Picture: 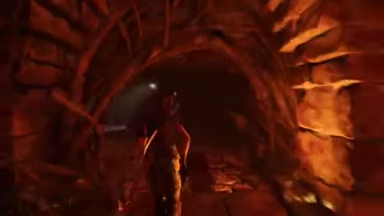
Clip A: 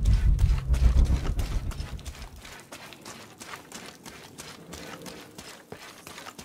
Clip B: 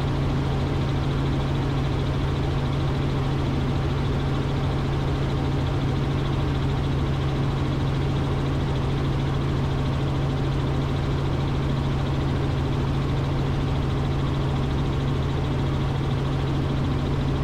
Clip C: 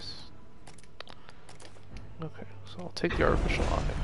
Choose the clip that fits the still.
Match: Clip A